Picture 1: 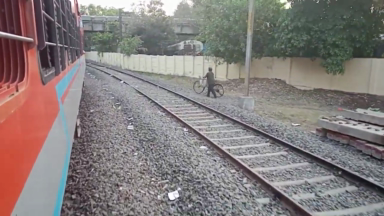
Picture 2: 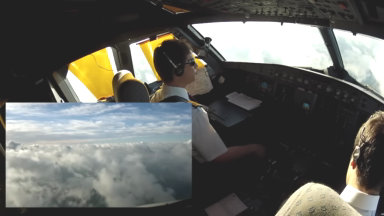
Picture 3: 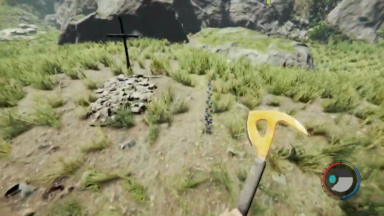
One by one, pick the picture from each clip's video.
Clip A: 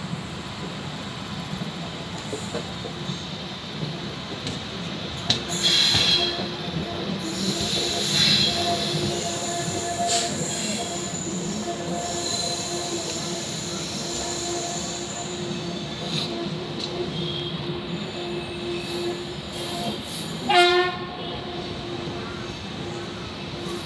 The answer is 1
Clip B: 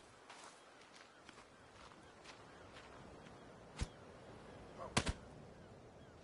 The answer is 3